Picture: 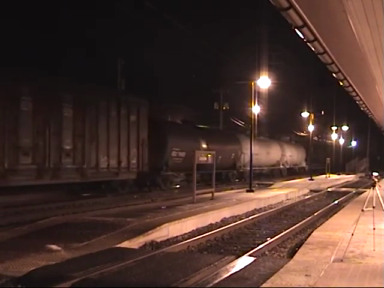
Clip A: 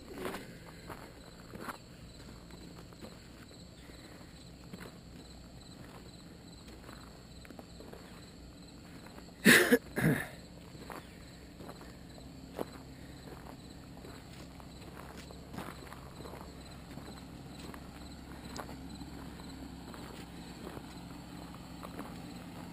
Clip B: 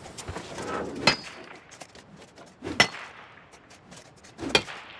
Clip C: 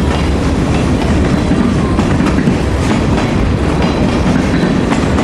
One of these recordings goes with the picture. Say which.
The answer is C